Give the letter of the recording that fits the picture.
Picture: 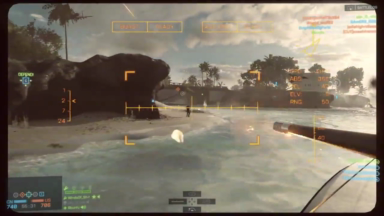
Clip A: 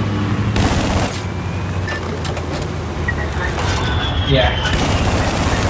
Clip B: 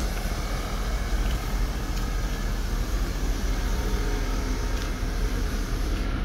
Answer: A